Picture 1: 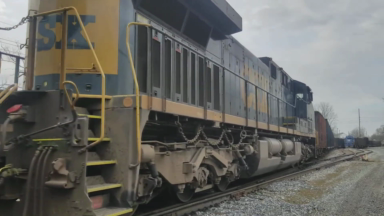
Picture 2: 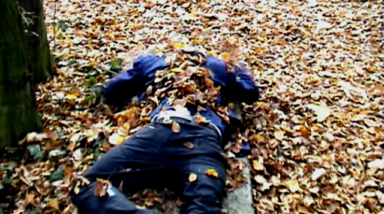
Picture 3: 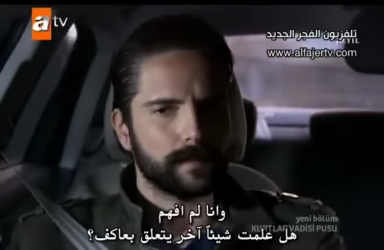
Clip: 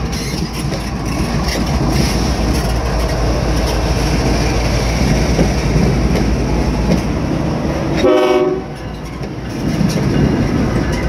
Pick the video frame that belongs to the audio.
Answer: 1